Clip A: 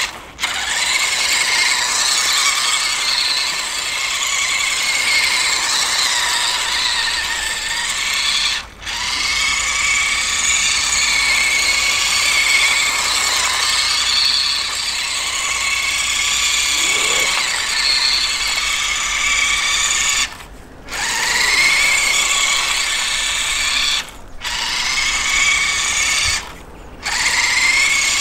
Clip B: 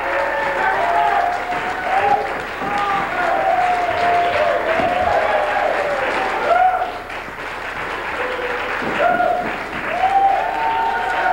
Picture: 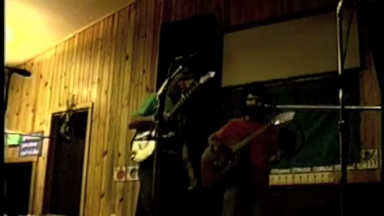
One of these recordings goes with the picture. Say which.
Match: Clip B